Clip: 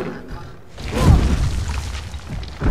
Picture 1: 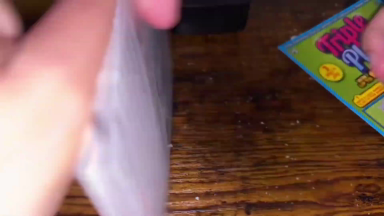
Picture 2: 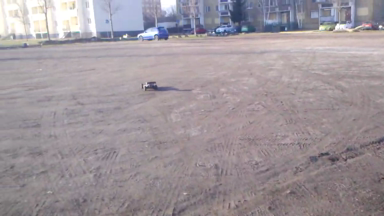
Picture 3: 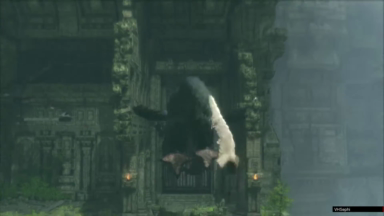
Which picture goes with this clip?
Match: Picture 3